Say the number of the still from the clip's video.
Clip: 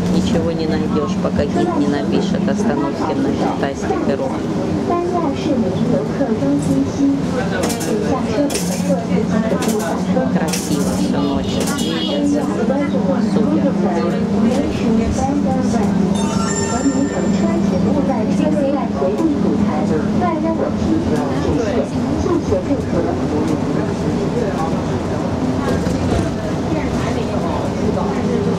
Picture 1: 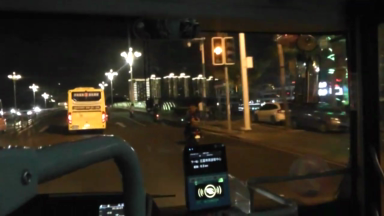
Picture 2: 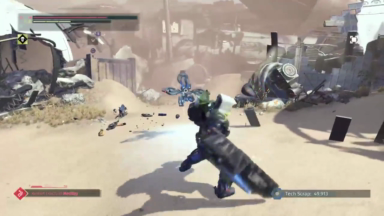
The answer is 1